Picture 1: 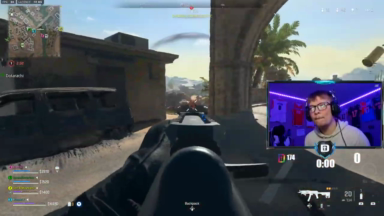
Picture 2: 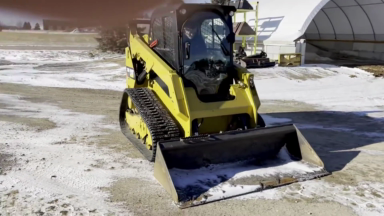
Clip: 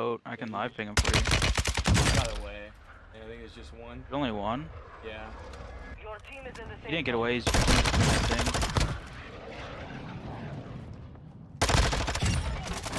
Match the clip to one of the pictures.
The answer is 1